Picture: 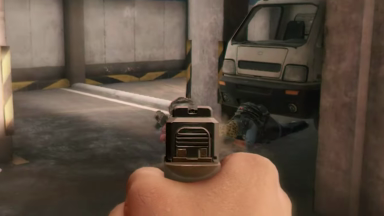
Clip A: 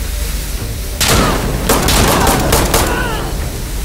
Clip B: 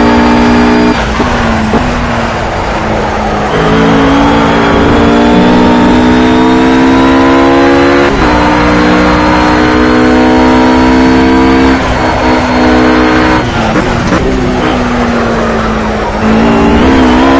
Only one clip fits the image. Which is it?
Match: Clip A